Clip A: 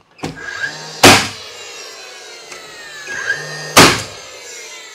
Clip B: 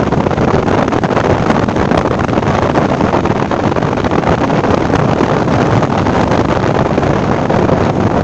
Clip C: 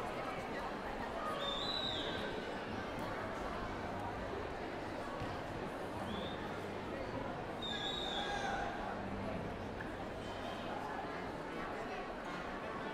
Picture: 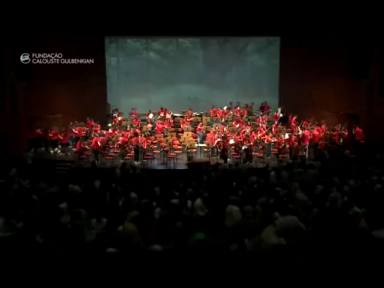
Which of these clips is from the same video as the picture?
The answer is C